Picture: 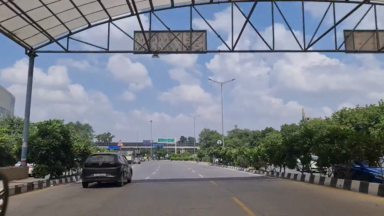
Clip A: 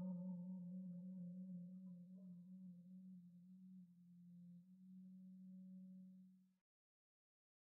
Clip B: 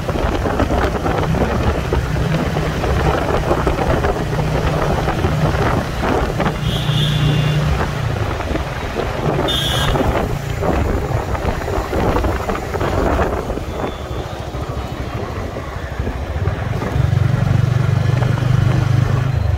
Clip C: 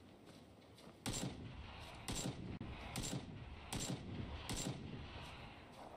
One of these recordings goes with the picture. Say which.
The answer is B